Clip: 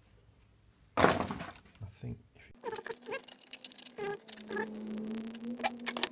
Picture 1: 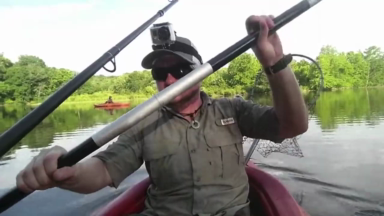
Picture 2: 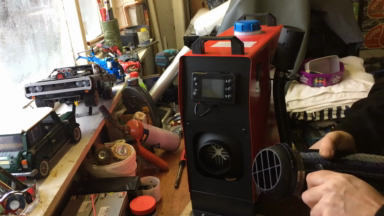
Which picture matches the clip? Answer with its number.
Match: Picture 2